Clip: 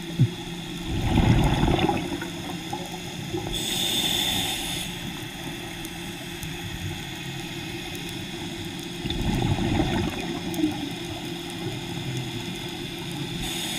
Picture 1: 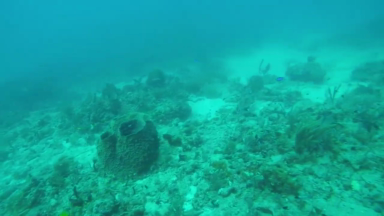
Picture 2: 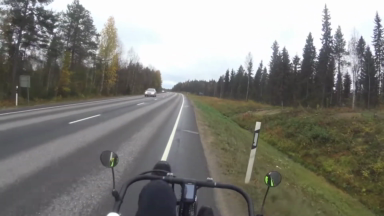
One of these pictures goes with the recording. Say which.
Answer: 1